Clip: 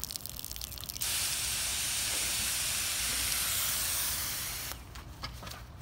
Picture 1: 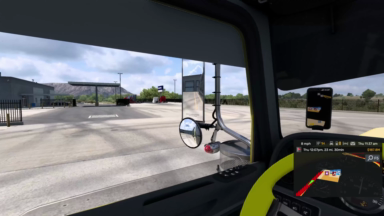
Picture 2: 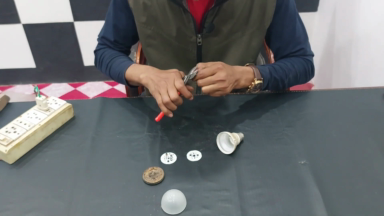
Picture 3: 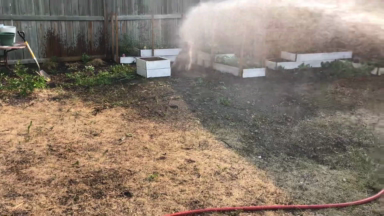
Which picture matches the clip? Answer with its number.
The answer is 3